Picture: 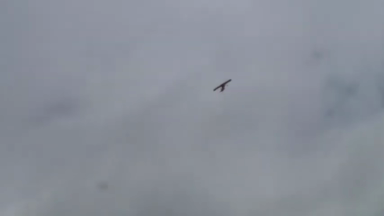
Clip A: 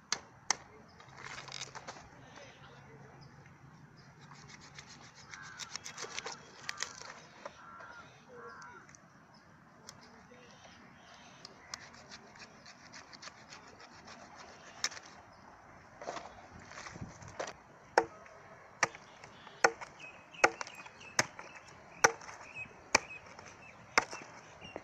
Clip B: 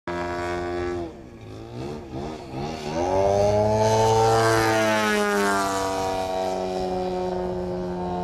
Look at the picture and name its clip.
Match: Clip B